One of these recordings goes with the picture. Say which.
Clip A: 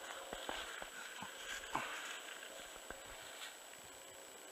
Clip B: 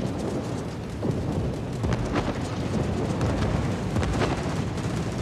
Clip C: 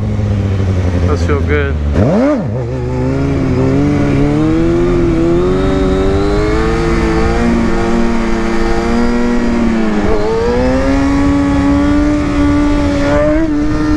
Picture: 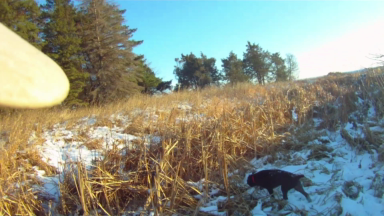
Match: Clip A